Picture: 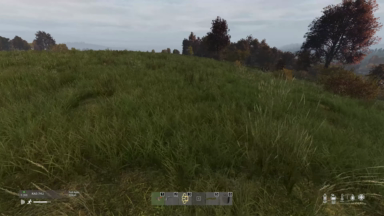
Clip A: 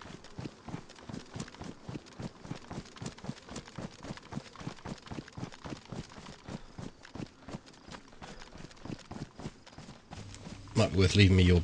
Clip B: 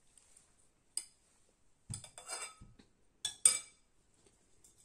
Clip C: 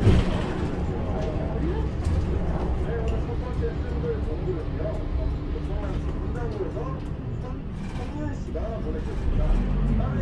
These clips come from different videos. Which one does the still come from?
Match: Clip A